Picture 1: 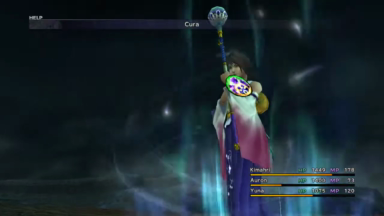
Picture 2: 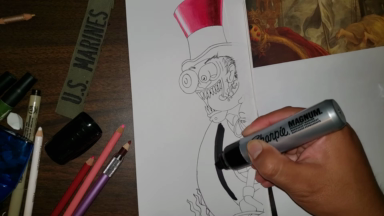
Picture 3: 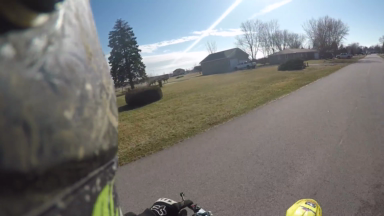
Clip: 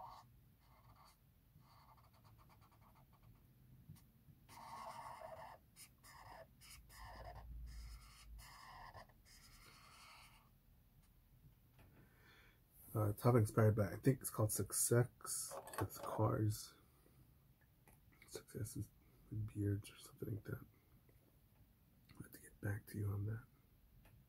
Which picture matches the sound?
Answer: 2